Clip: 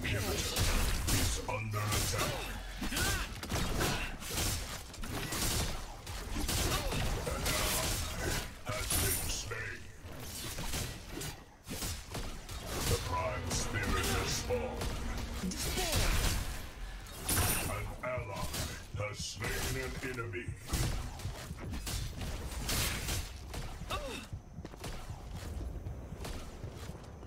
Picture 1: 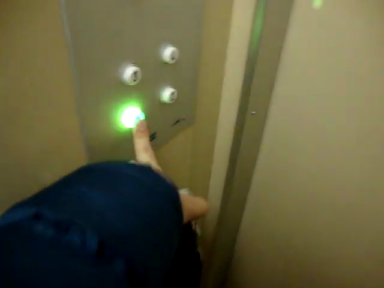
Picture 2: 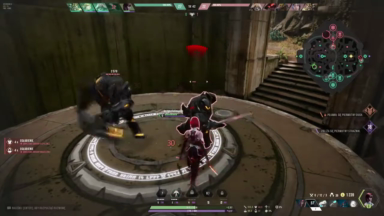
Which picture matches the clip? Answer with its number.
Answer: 2